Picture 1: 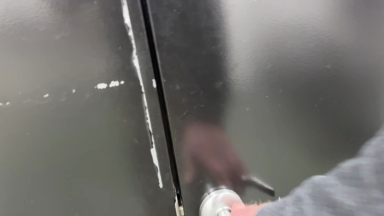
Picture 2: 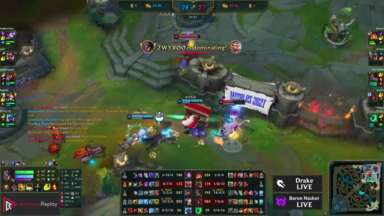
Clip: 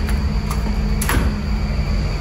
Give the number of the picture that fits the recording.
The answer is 1